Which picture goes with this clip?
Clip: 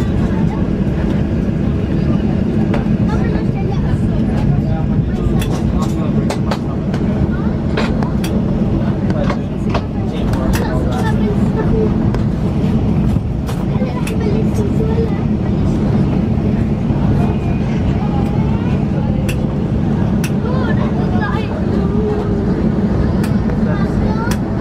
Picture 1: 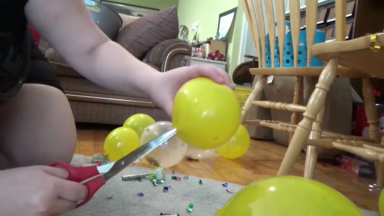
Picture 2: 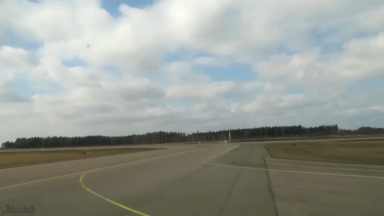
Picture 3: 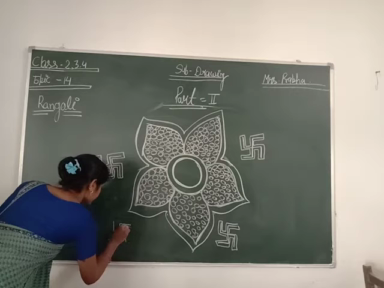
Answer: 2